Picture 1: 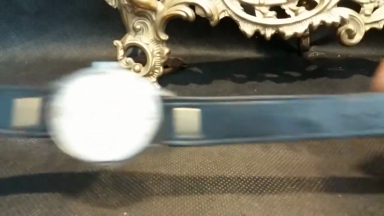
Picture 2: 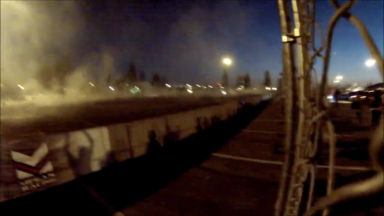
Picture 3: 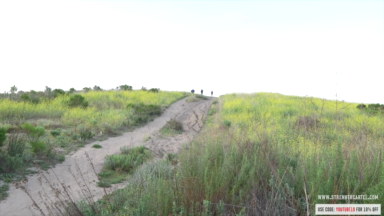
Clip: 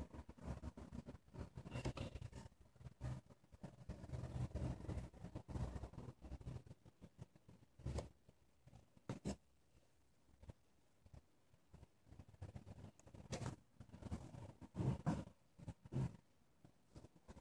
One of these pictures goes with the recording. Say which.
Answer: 1